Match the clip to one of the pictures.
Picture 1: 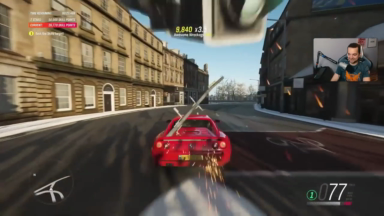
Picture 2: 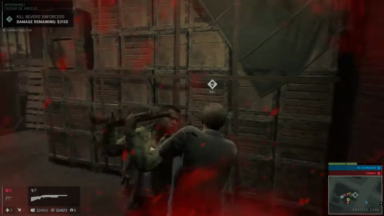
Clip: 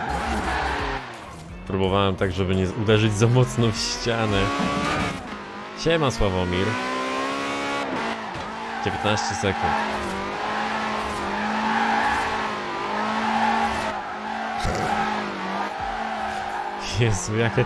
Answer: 1